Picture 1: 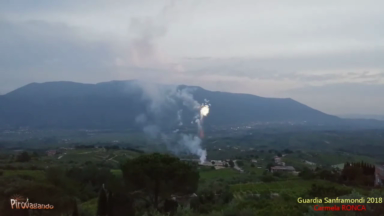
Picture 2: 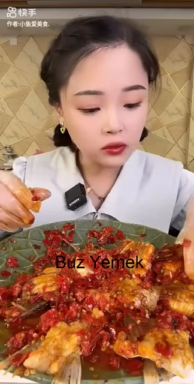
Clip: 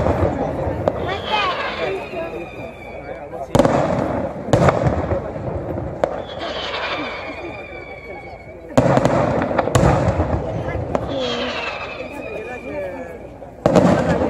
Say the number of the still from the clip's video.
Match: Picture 1